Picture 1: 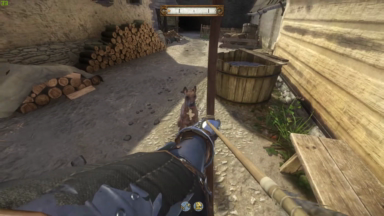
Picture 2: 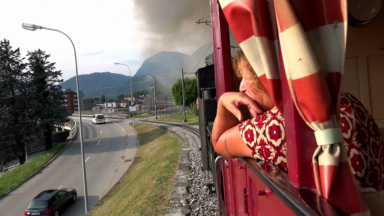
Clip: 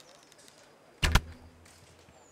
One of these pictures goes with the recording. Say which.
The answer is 1